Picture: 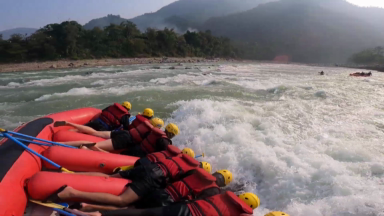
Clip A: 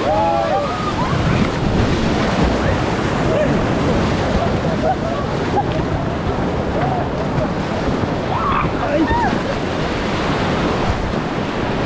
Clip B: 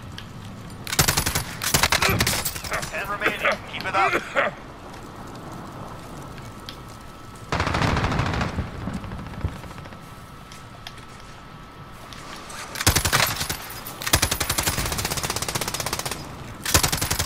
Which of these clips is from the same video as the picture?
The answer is A